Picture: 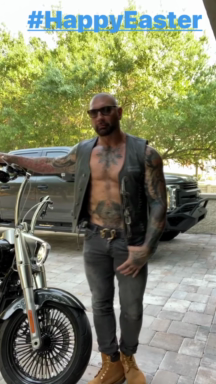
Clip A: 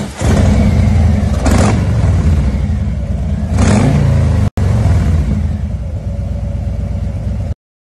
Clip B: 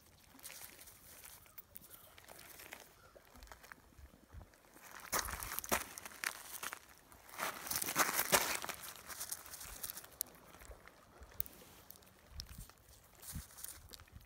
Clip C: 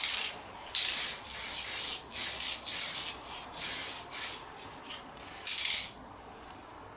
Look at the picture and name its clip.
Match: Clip A